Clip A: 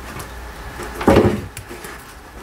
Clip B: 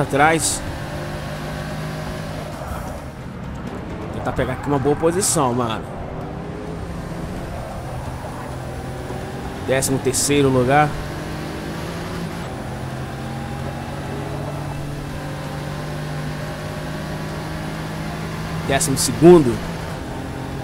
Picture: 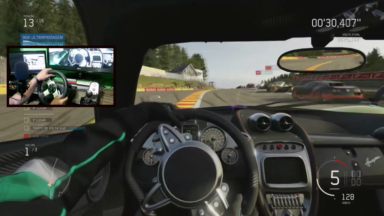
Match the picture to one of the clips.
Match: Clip B